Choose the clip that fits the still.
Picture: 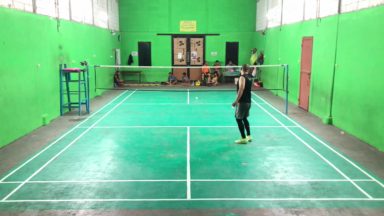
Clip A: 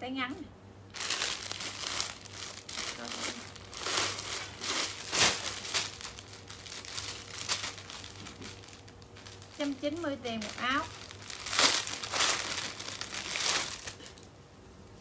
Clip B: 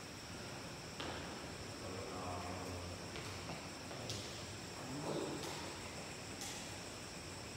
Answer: B